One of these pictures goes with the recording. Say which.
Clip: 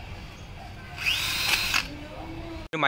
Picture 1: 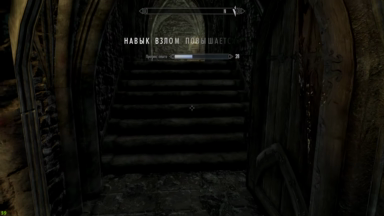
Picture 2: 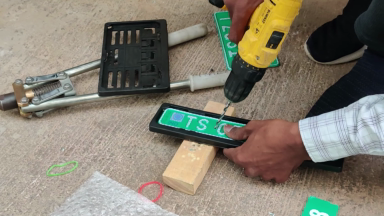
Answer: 2